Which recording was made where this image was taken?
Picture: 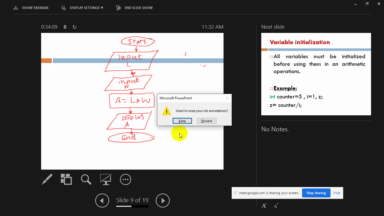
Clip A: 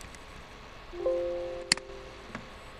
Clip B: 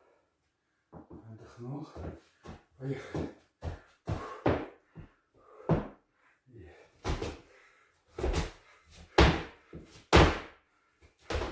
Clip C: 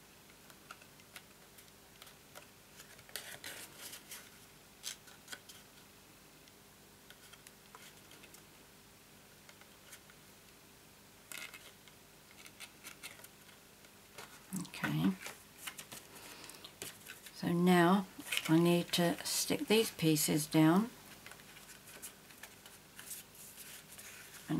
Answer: A